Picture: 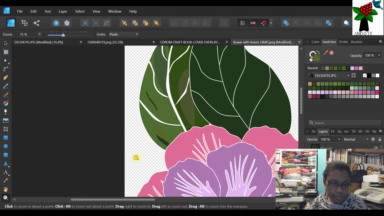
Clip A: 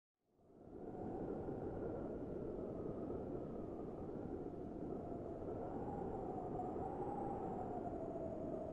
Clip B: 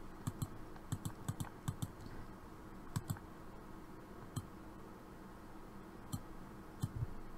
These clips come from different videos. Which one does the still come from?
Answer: B